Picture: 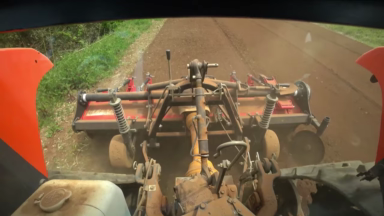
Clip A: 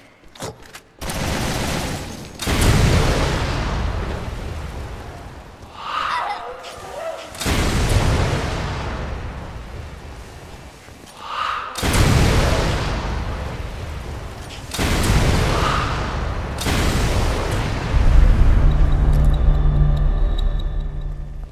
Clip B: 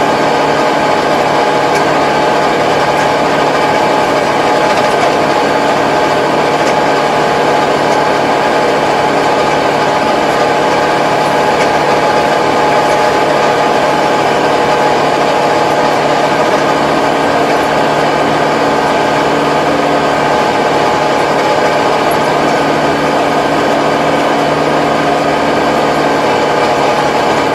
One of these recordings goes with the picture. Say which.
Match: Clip B